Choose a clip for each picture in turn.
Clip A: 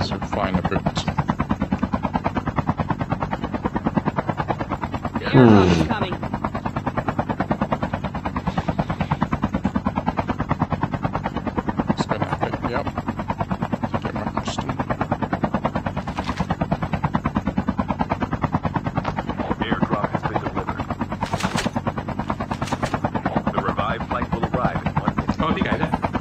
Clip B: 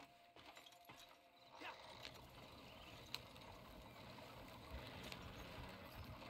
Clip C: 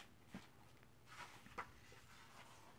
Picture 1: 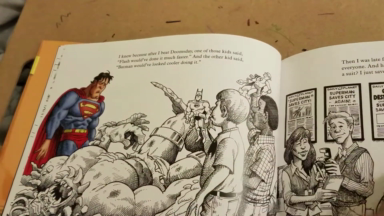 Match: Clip C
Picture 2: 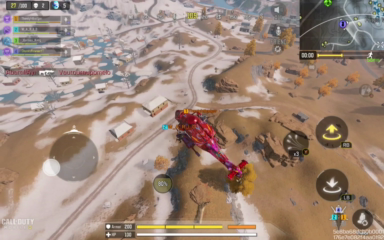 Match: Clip A